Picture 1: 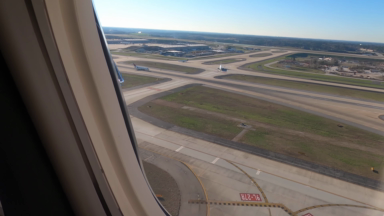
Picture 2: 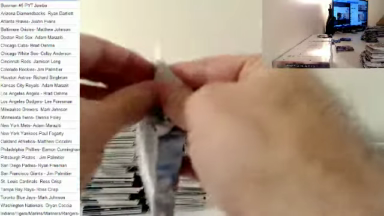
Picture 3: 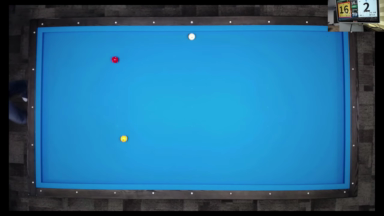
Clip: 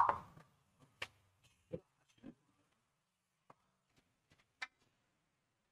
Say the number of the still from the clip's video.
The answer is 3